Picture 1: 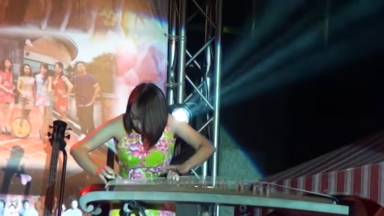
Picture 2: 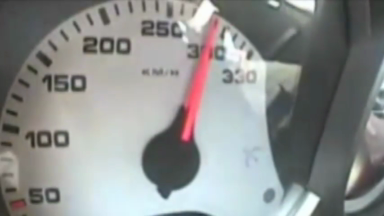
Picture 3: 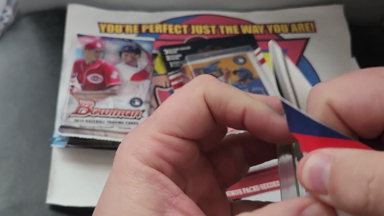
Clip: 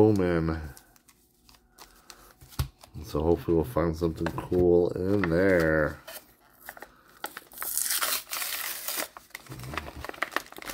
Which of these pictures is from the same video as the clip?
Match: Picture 3